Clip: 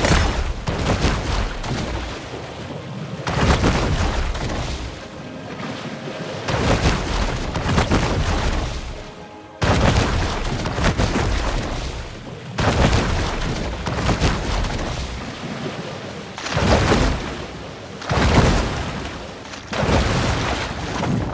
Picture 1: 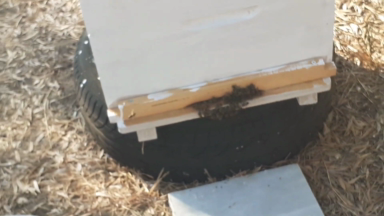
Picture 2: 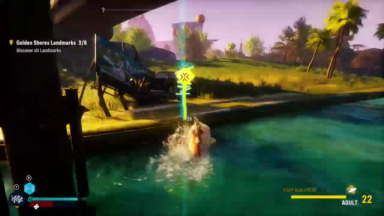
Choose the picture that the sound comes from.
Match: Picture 2